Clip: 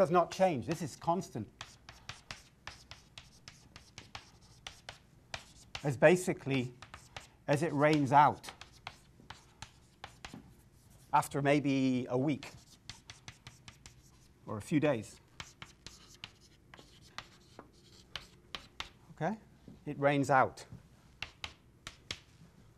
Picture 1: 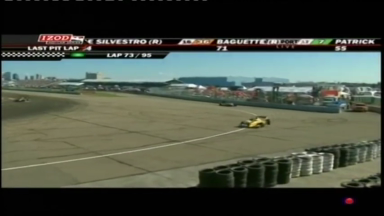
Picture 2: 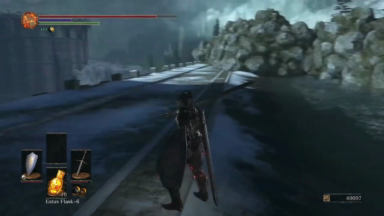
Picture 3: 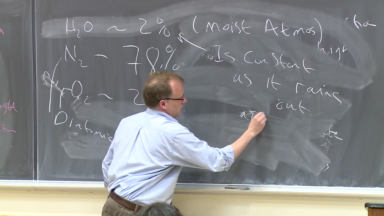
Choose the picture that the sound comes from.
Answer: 3